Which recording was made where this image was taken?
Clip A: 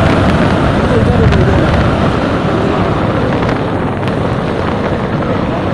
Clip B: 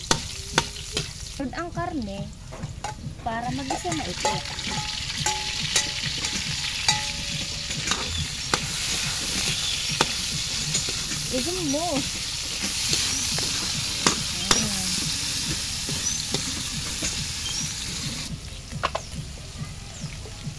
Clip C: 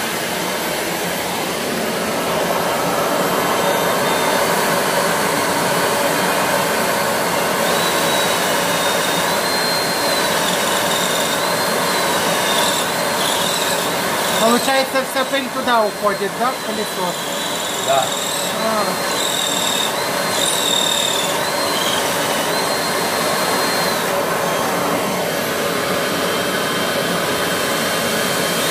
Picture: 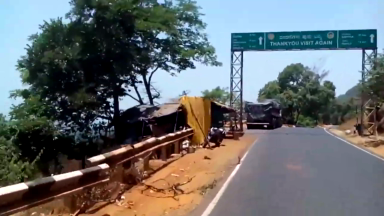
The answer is A